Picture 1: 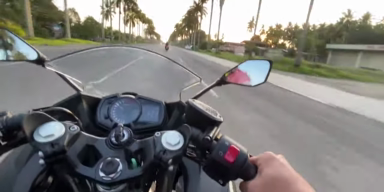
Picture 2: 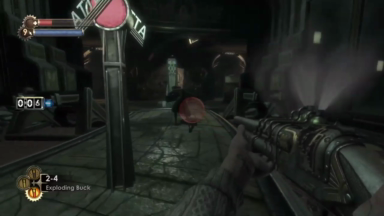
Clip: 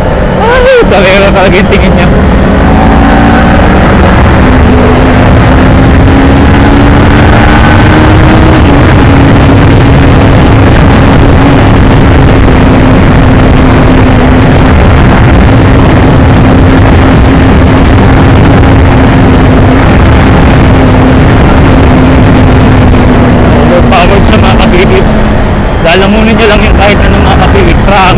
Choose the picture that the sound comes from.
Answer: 1